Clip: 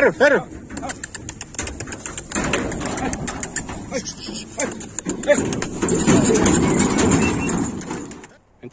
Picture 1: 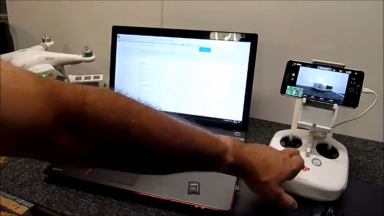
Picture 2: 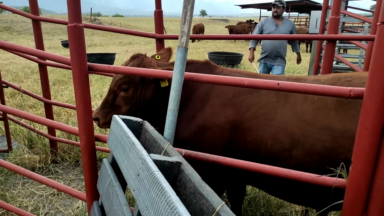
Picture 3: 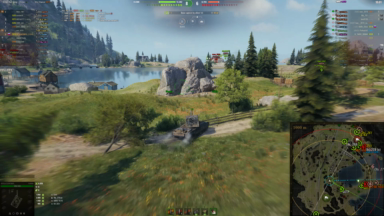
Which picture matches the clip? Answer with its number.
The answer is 2